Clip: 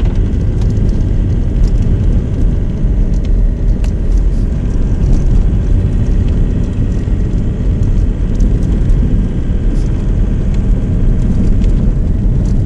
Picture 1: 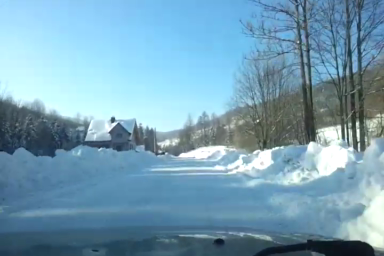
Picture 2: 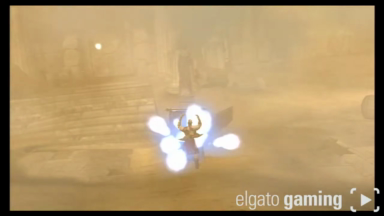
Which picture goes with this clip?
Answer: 1